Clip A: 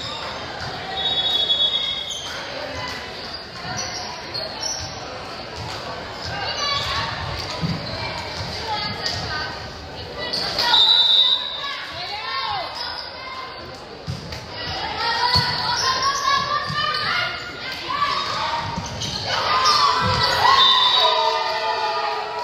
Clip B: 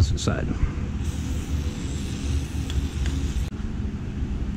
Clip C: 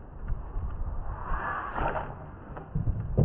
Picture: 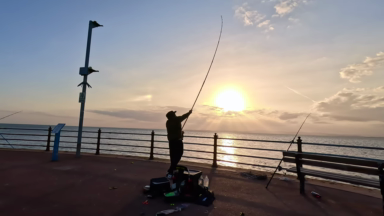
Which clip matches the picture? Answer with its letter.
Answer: C